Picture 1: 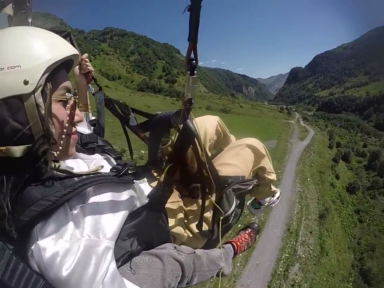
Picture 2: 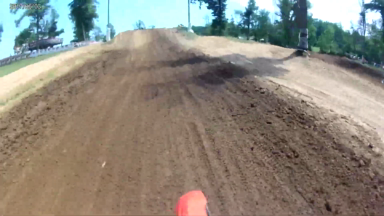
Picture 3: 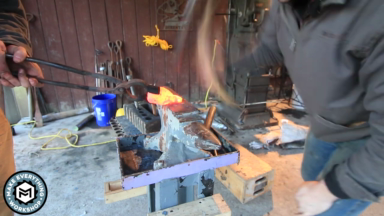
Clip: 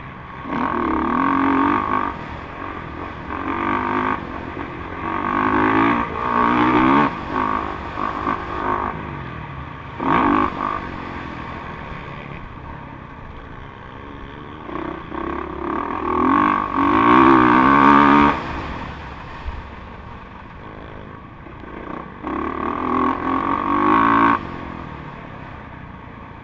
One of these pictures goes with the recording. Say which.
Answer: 2